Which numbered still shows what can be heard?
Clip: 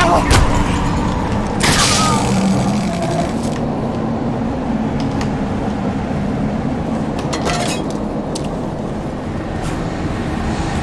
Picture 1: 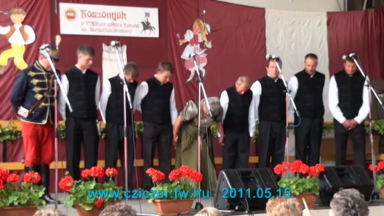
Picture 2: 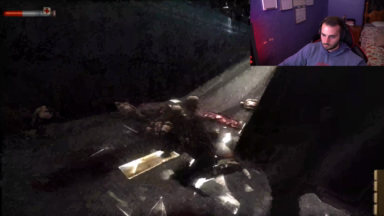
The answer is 2